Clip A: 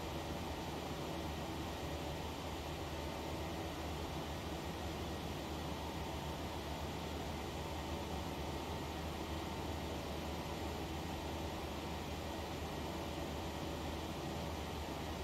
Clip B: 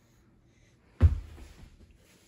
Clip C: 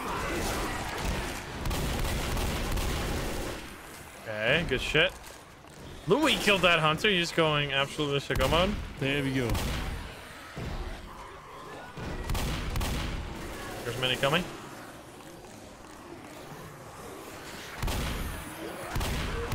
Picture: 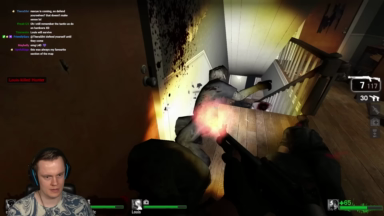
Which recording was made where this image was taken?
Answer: C